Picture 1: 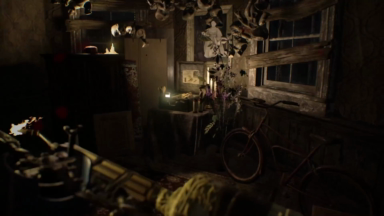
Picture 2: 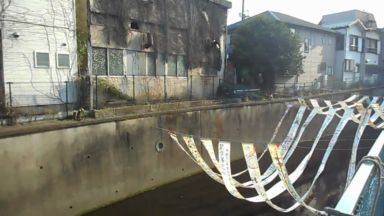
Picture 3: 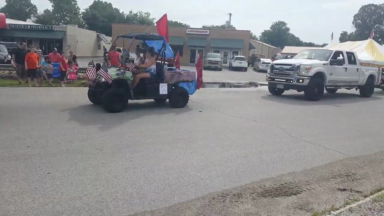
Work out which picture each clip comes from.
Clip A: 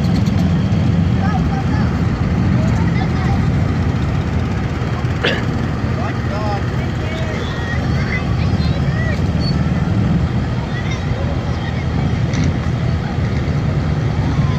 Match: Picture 3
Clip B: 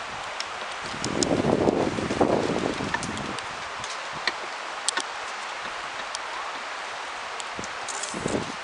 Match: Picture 2